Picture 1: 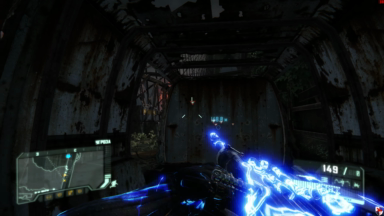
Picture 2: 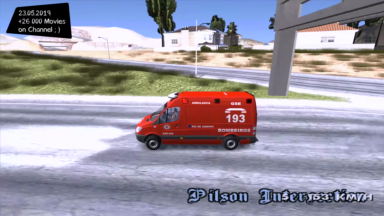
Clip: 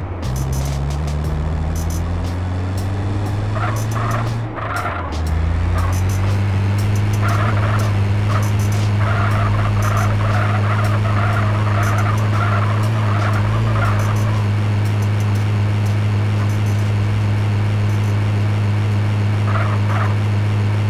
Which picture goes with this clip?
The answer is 2